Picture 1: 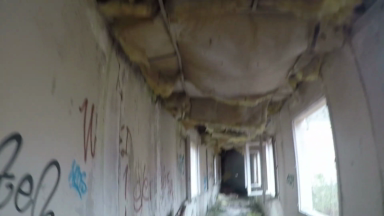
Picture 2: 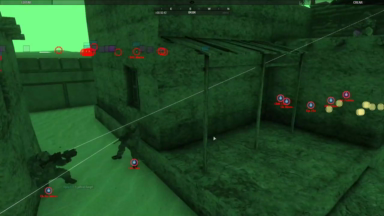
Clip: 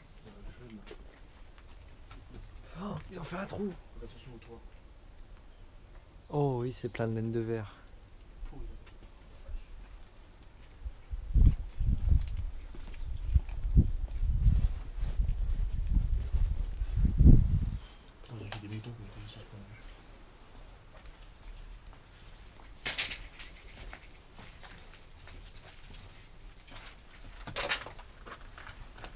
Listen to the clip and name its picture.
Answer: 1